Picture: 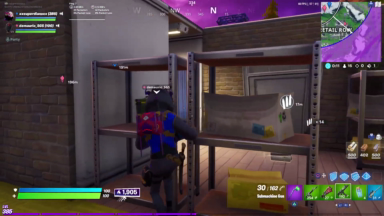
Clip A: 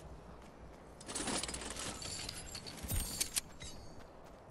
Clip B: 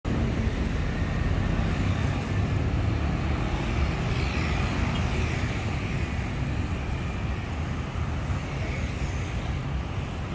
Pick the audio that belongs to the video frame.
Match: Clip A